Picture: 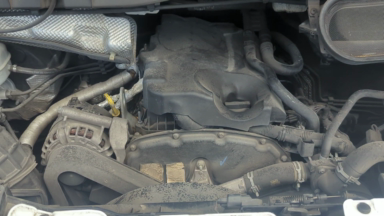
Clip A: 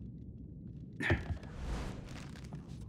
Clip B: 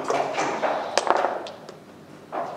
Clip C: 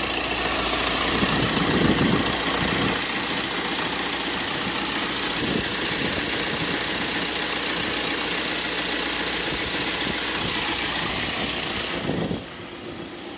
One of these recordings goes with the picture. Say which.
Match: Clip C